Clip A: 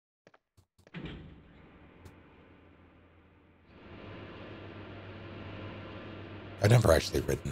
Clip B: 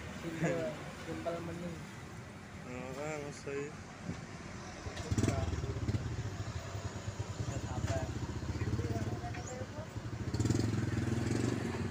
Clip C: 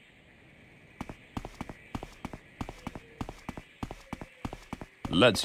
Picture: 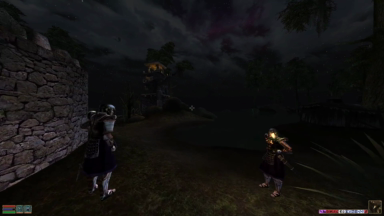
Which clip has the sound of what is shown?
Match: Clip C